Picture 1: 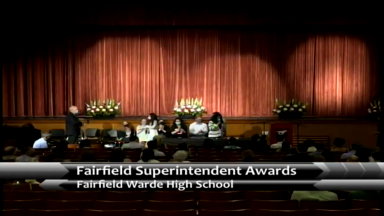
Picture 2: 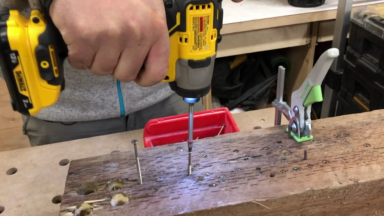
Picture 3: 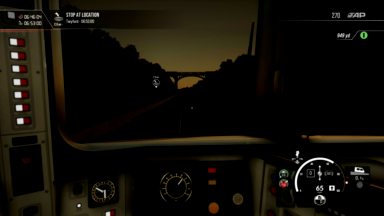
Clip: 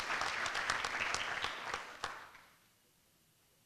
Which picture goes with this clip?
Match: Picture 1